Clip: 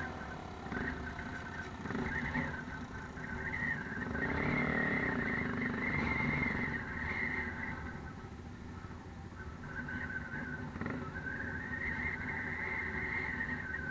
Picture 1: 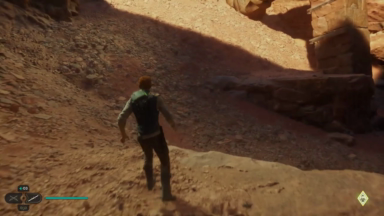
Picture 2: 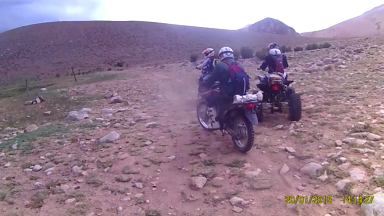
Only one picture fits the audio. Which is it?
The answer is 2